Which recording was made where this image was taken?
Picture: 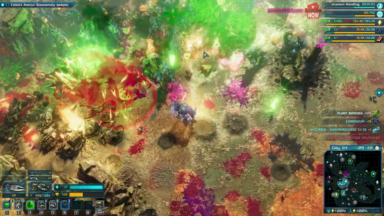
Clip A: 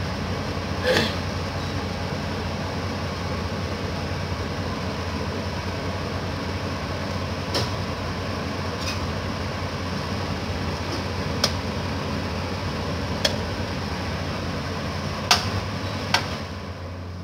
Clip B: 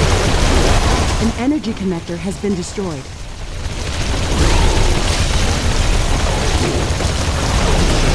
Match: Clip B